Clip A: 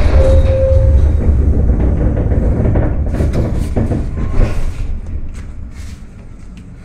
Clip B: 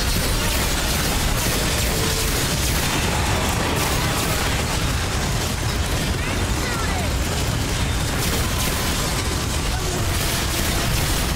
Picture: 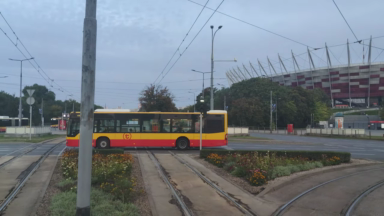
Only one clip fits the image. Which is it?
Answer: A